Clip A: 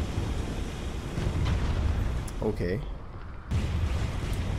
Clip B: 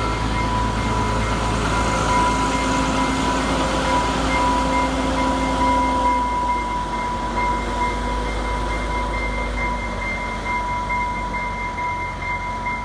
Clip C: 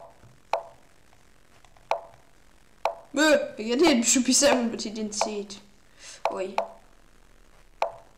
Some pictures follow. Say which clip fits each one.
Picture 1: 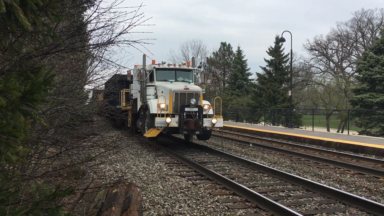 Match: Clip B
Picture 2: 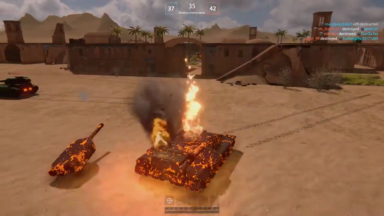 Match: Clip A